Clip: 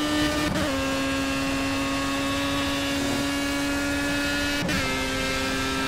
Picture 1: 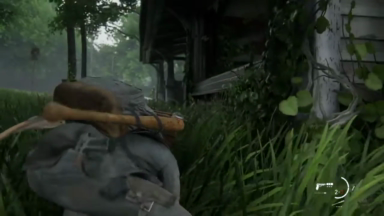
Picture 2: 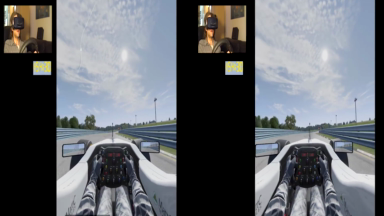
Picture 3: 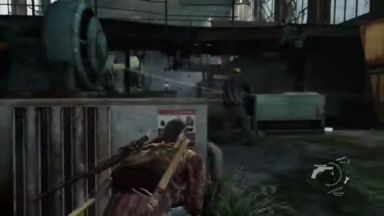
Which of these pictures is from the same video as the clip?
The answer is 2